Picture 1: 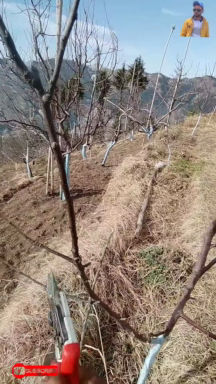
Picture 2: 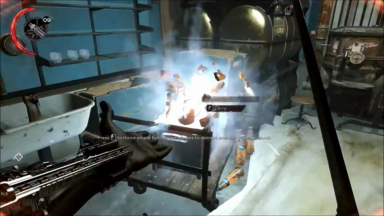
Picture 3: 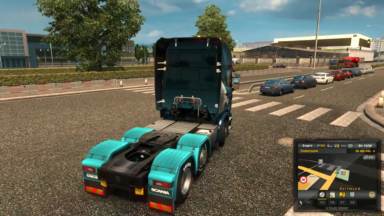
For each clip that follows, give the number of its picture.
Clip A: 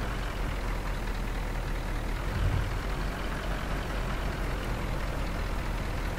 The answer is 3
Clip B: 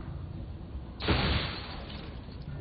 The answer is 2